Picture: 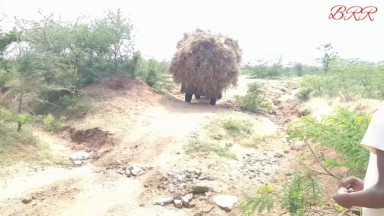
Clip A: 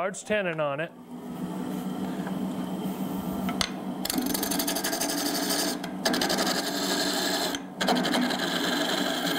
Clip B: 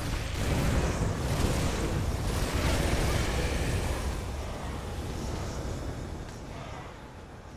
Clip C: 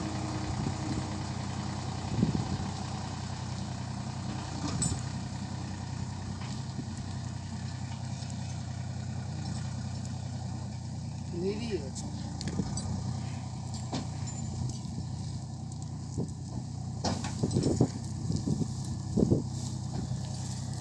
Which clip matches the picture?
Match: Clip C